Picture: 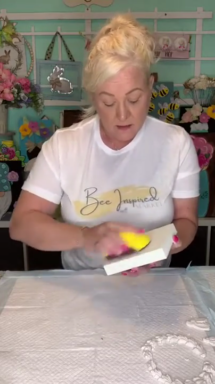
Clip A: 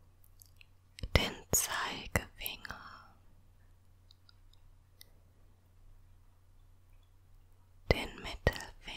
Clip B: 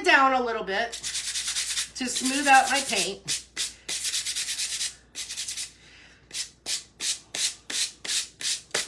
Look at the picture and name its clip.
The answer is B